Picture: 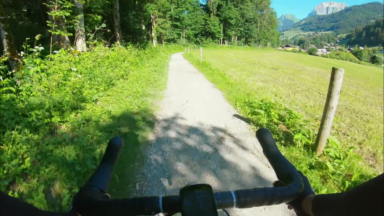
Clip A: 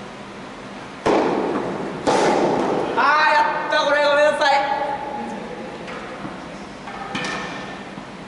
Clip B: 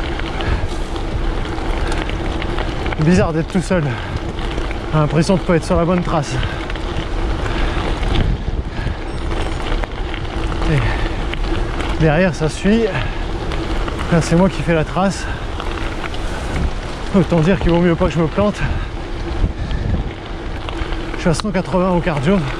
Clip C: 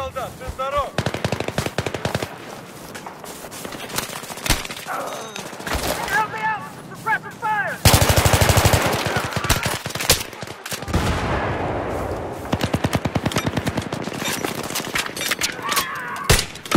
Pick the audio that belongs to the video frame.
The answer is B